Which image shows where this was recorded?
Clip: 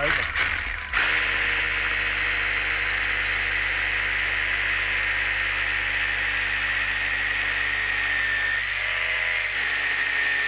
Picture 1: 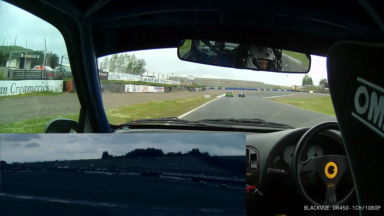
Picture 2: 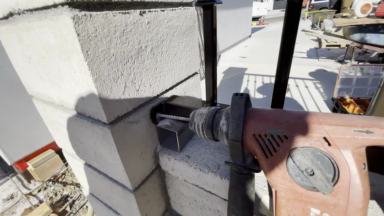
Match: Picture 2